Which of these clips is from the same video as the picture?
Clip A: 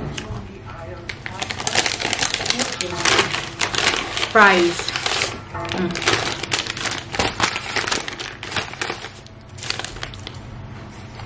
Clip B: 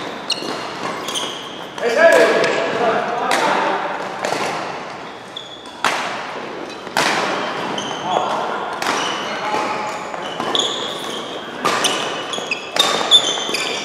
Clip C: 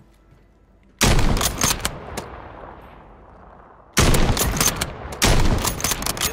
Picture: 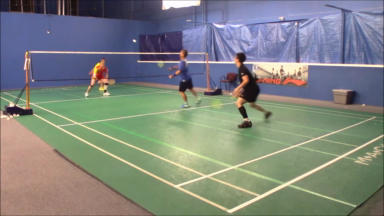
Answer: B